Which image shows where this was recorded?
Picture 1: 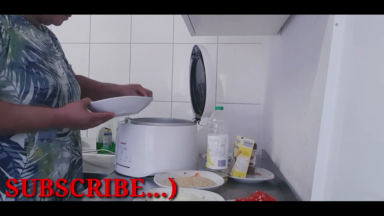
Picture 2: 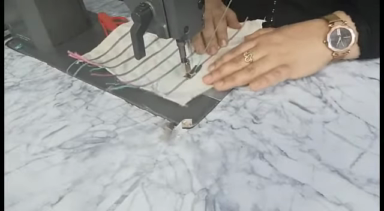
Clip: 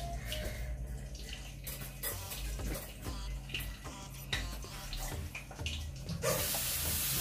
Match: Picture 1